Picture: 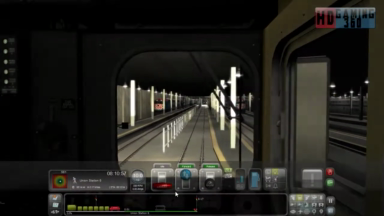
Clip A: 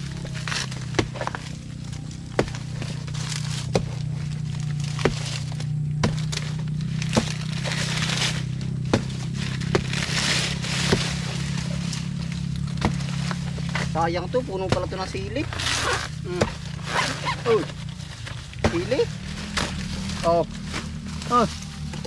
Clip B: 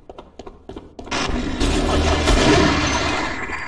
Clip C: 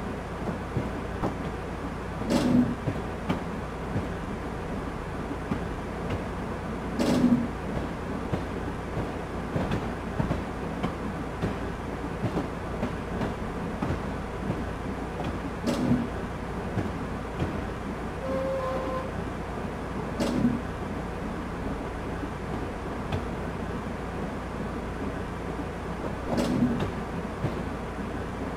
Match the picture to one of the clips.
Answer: C